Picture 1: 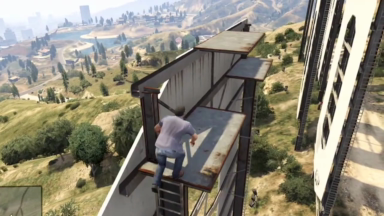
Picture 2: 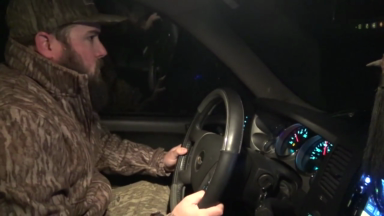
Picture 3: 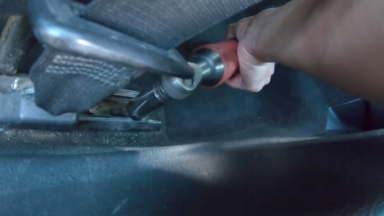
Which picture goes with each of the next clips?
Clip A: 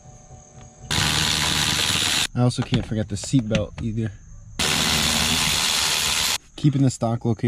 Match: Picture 3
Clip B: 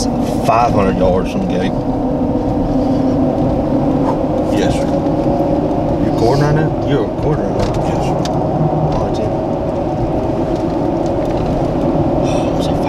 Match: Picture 2